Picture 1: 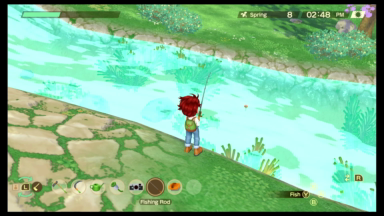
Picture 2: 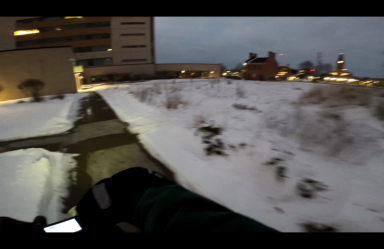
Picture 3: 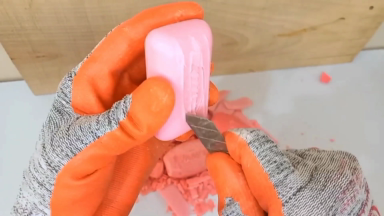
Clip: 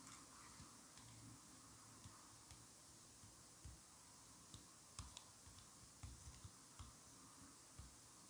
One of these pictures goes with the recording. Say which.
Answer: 3